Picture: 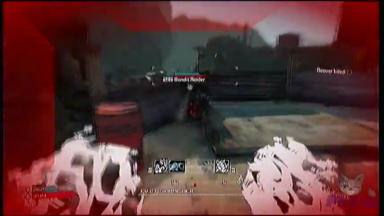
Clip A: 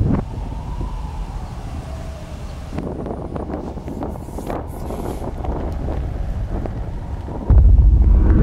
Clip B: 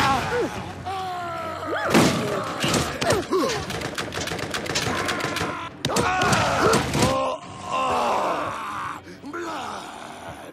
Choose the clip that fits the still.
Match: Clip B